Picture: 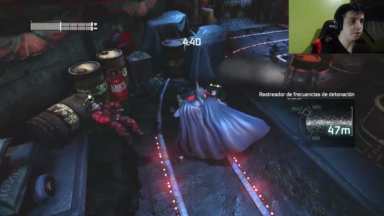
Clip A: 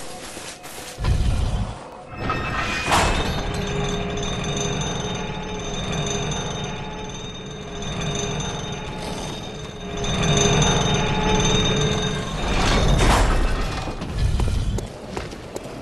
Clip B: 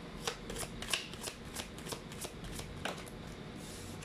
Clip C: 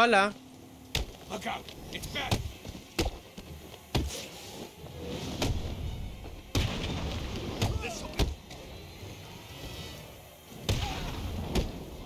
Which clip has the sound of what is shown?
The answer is C